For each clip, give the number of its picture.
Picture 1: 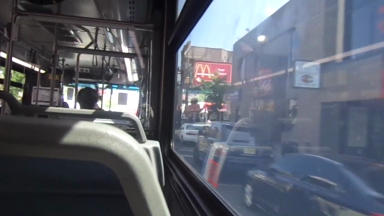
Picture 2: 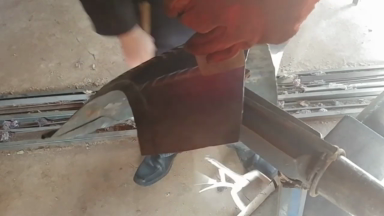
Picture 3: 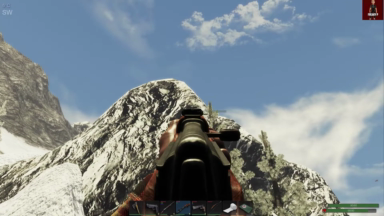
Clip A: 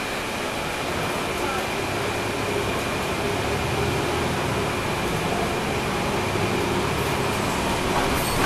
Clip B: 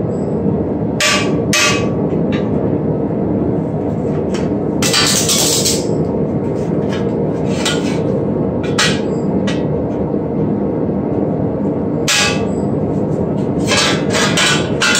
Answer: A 1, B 2